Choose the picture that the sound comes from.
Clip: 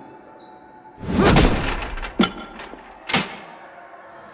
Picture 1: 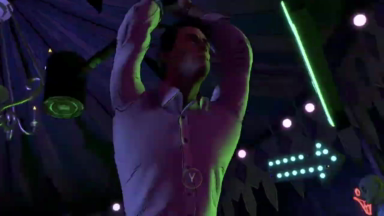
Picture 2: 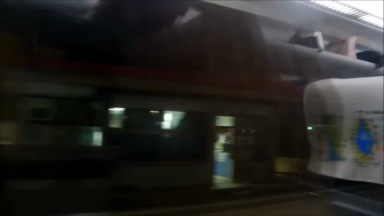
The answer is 1